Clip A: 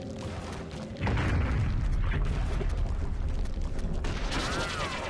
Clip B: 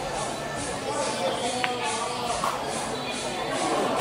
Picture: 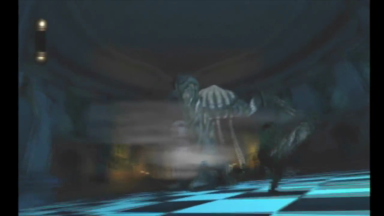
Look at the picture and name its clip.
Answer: A